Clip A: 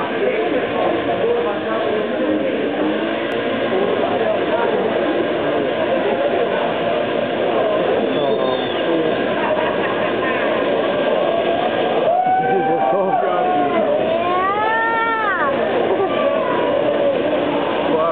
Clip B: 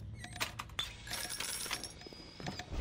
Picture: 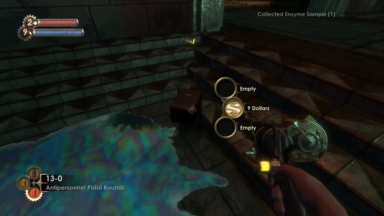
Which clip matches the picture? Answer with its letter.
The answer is B